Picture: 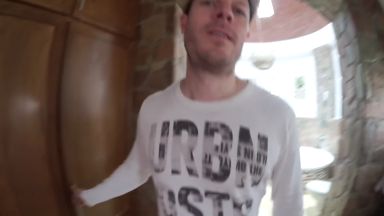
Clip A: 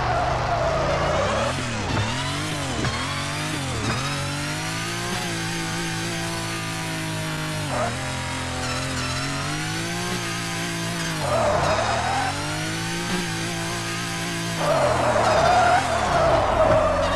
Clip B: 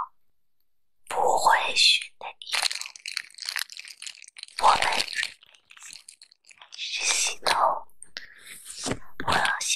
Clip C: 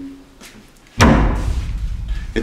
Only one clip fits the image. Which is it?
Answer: C